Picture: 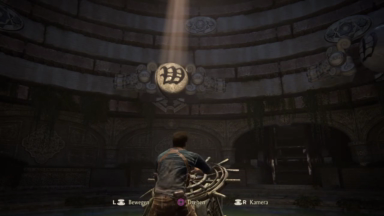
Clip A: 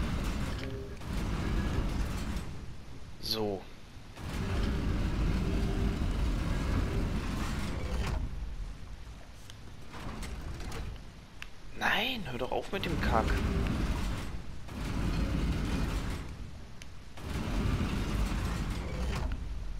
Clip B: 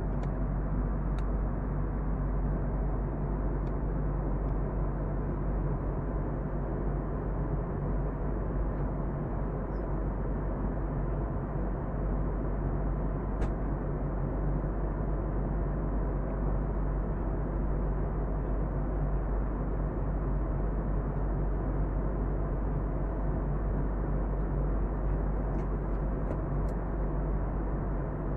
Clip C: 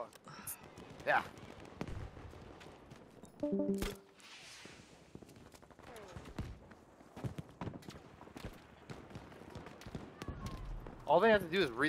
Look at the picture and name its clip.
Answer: A